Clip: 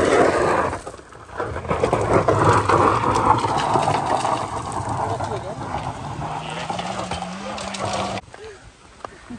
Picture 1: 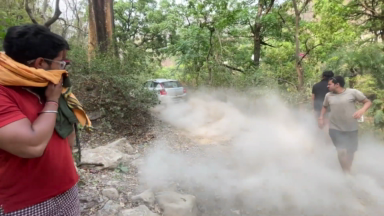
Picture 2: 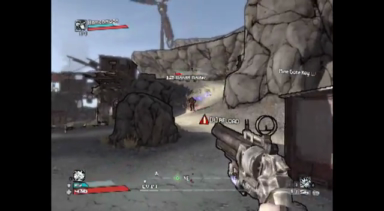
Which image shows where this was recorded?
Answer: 1